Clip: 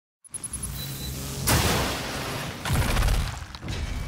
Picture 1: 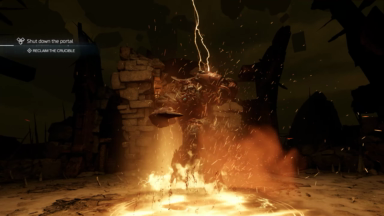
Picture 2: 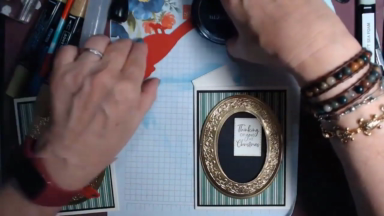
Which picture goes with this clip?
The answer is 1